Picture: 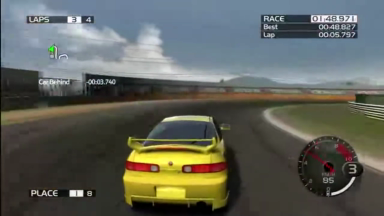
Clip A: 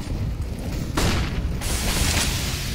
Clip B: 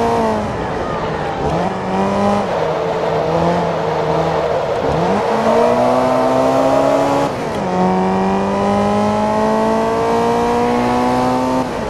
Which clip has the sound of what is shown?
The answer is B